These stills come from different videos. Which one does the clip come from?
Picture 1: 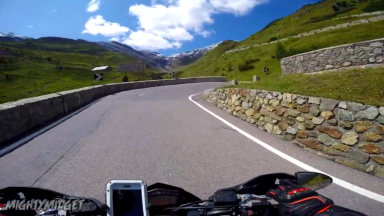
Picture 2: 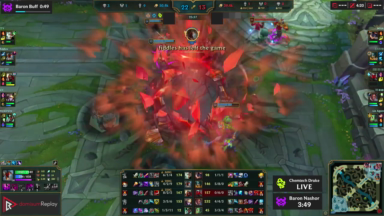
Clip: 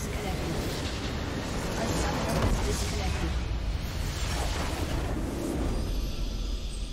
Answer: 2